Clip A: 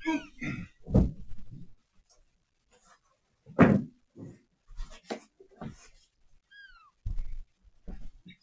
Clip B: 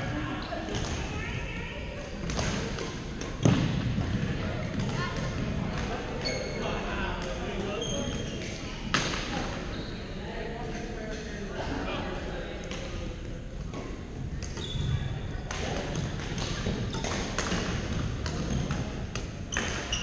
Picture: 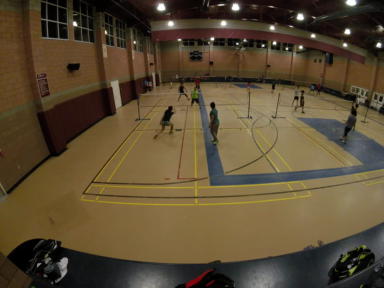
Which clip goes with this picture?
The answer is B